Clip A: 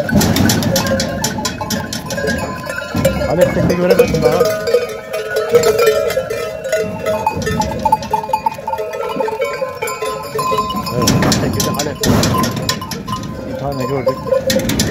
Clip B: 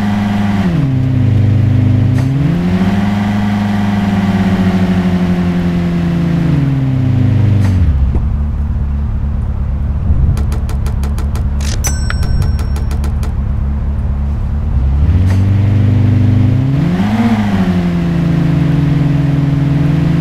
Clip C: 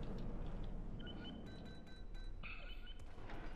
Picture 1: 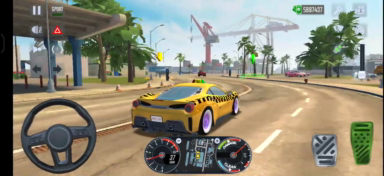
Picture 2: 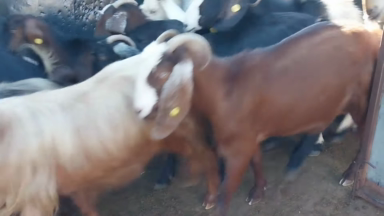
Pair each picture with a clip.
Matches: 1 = B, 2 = A